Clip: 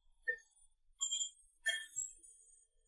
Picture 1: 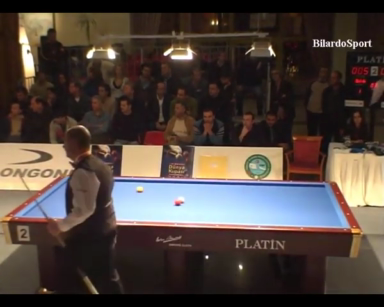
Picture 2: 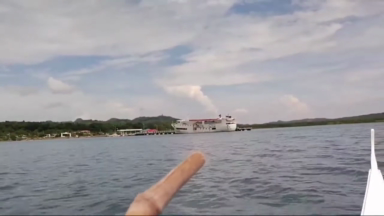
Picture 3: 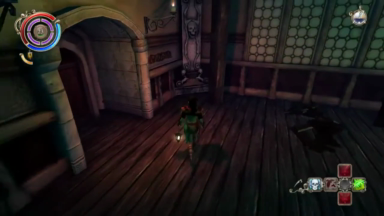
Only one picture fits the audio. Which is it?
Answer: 1